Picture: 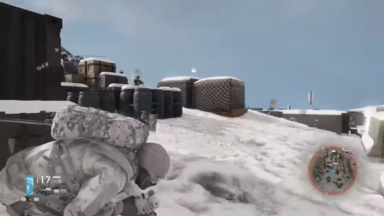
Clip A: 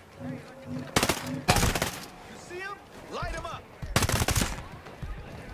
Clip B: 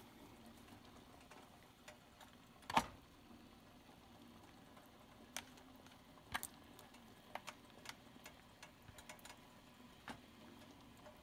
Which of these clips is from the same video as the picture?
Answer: A